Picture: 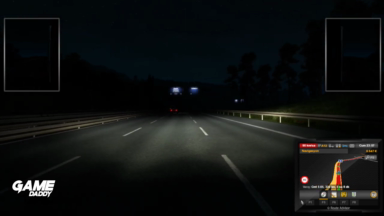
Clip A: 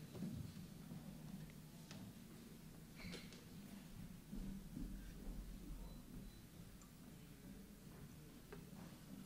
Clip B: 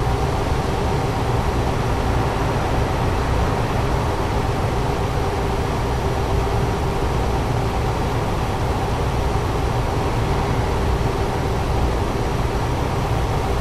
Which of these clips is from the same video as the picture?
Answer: B